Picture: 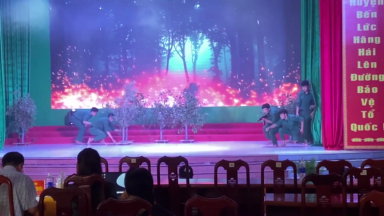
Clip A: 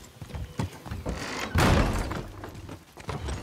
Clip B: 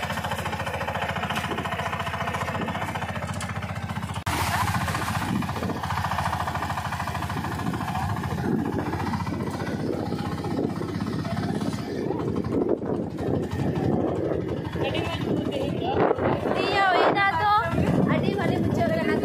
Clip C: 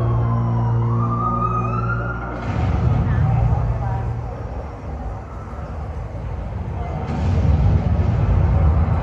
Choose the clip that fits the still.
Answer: C